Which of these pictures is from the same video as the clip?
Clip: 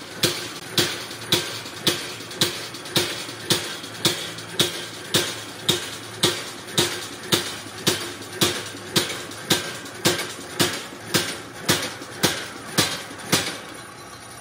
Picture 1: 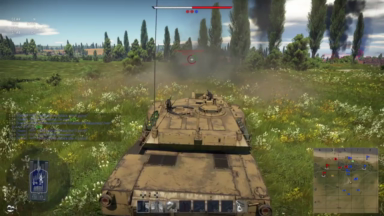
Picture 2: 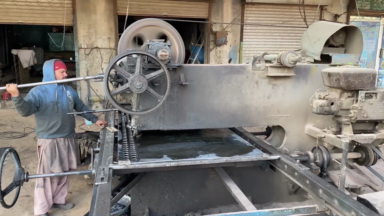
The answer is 2